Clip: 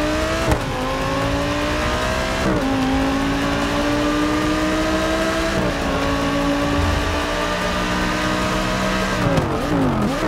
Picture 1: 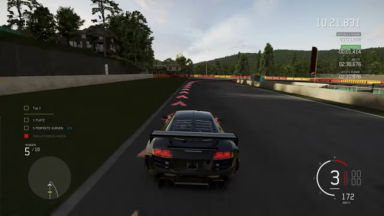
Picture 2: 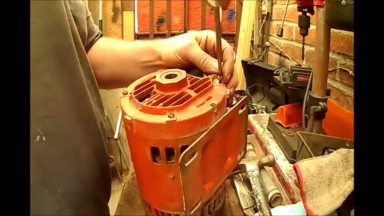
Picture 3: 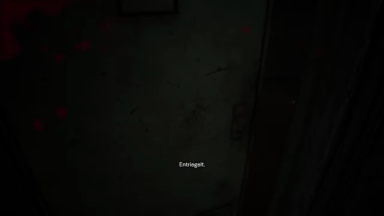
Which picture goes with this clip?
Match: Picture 1